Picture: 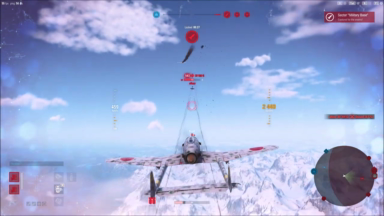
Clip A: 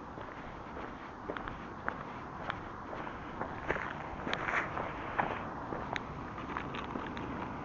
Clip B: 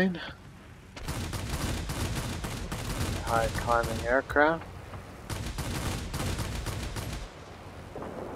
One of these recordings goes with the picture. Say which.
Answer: B